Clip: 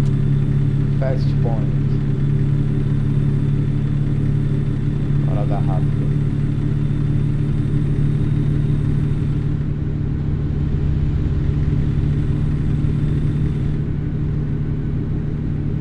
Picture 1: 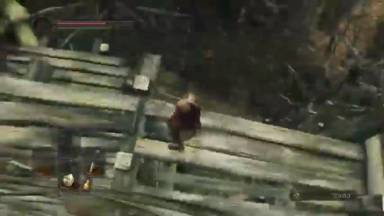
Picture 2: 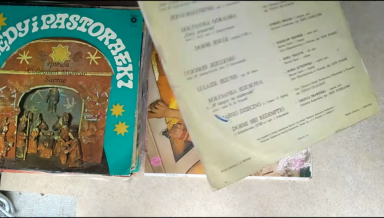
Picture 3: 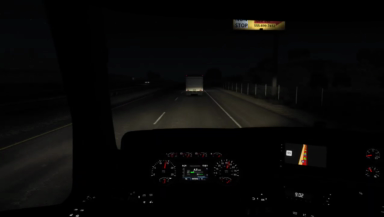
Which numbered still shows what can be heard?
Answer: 3